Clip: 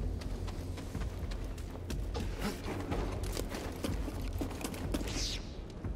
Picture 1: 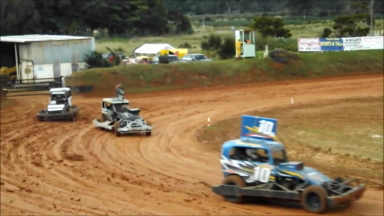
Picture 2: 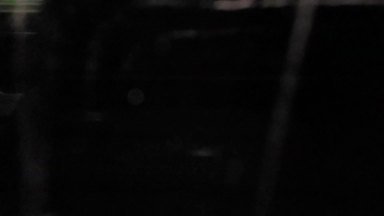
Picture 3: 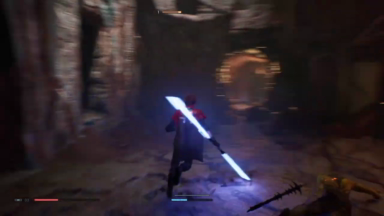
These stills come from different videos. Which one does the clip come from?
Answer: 3